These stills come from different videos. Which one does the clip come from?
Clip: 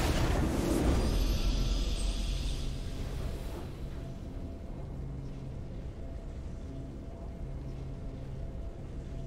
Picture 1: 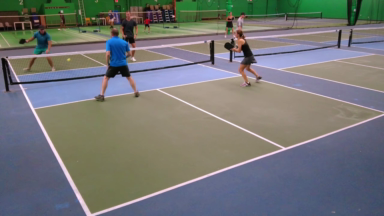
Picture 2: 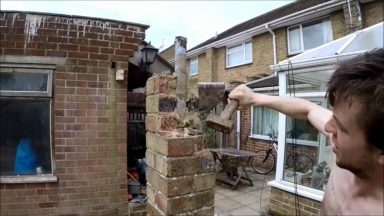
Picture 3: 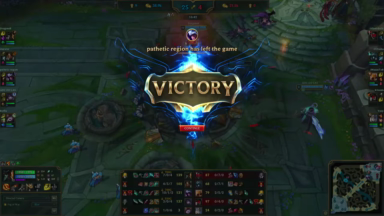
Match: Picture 3